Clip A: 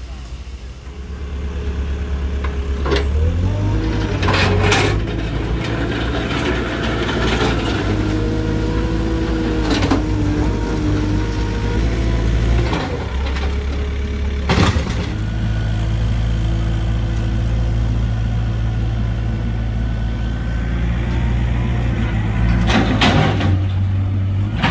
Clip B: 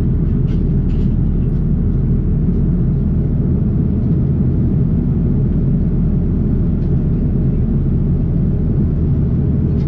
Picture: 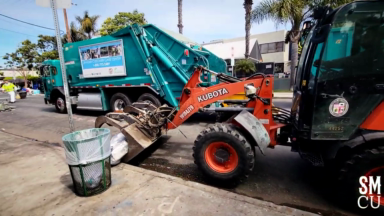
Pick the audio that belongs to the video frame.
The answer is A